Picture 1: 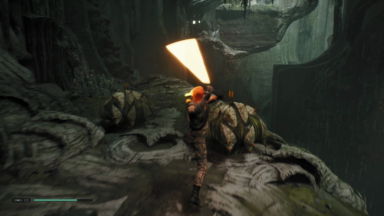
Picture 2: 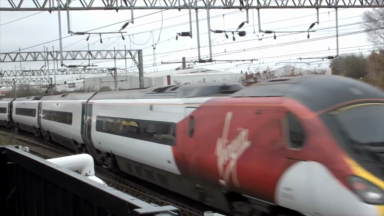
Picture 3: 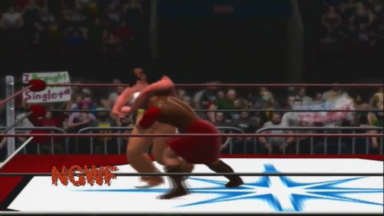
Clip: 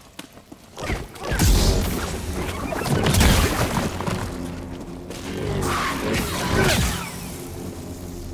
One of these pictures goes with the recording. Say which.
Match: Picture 1